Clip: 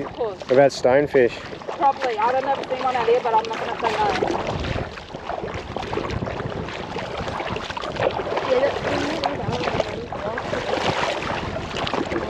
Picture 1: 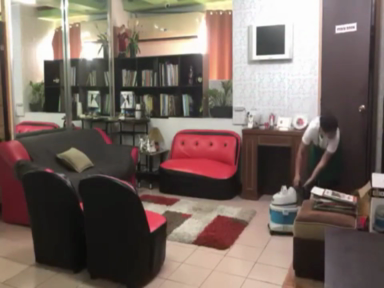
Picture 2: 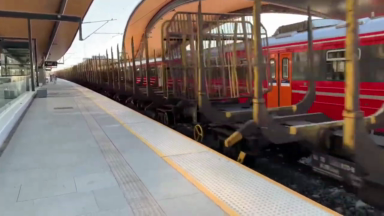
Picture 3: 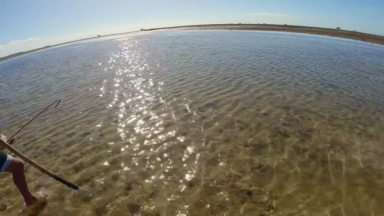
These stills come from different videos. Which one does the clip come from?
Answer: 3